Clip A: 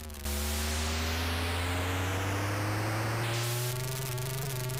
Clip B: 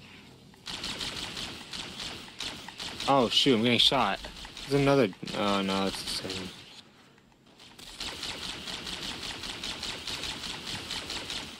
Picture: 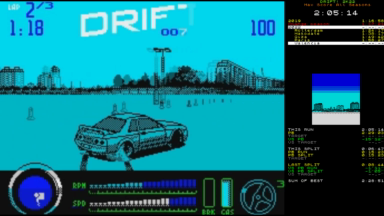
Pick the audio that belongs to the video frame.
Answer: A